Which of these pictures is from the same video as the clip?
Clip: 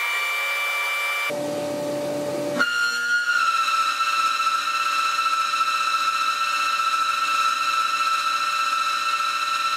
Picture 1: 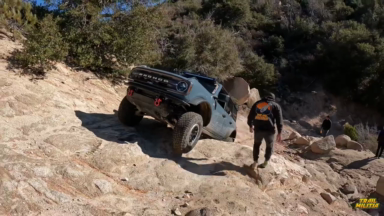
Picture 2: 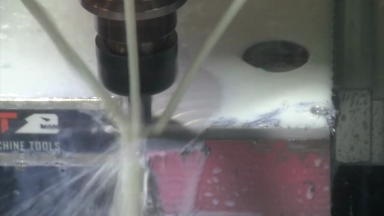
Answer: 2